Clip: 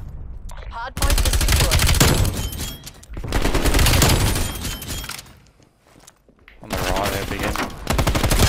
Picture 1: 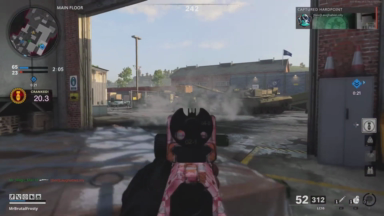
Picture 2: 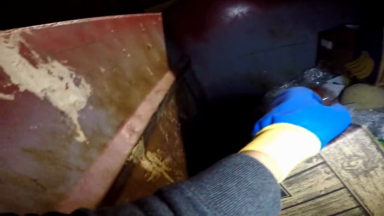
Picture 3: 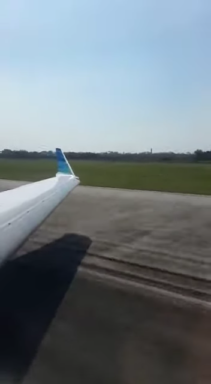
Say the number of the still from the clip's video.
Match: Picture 1